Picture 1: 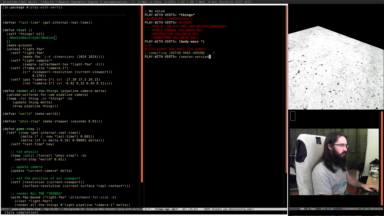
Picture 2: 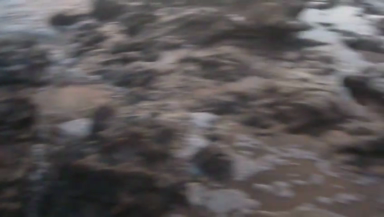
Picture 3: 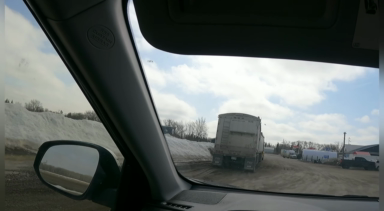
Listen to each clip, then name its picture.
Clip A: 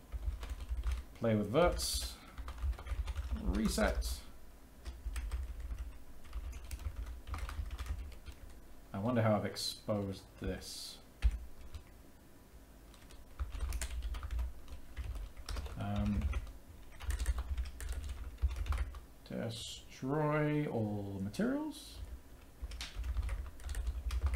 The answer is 1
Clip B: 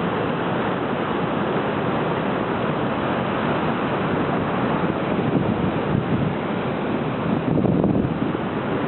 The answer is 2